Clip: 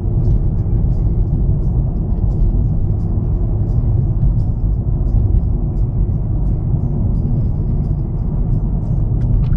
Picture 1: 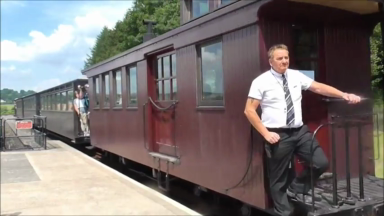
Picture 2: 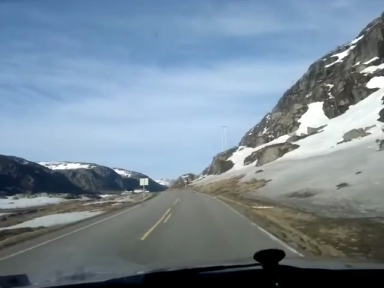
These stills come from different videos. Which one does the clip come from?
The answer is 2